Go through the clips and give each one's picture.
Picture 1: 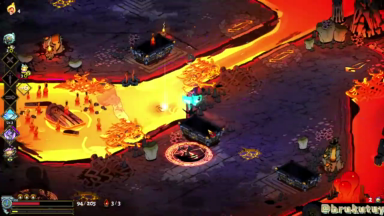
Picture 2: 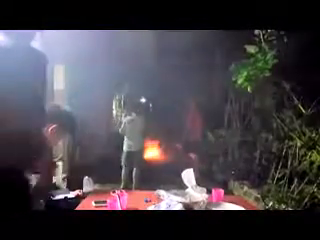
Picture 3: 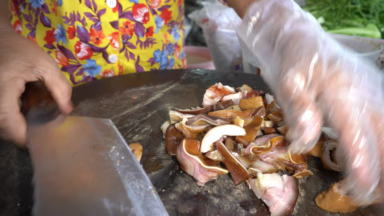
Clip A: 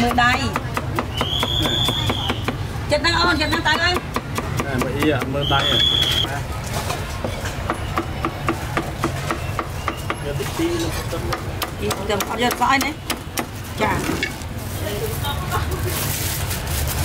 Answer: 3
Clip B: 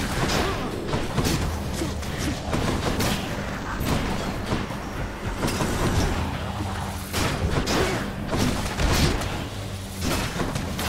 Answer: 1